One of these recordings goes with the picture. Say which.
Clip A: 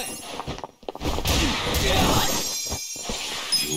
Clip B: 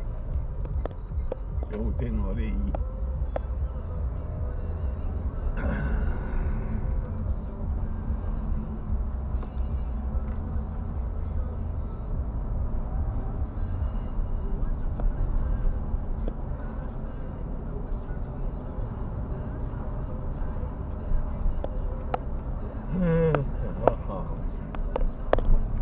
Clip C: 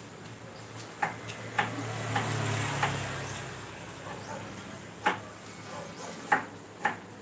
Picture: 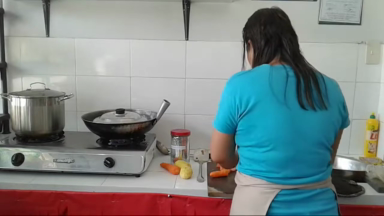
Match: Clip C